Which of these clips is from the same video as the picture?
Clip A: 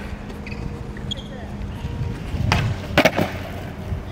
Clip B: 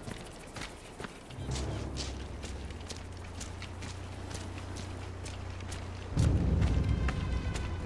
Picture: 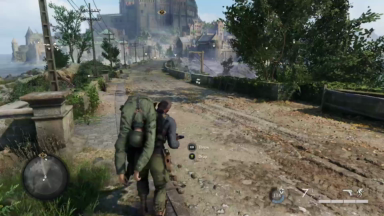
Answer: B